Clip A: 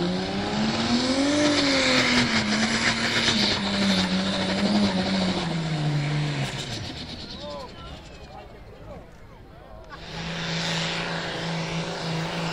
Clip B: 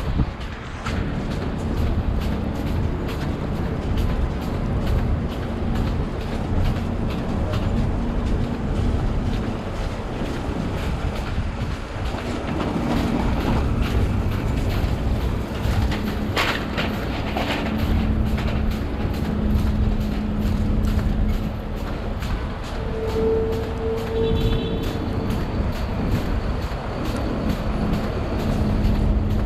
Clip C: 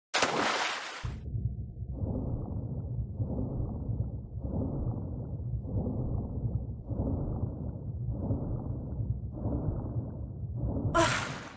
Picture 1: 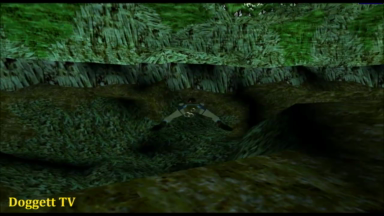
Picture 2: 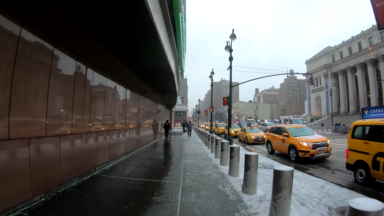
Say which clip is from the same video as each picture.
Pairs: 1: C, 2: B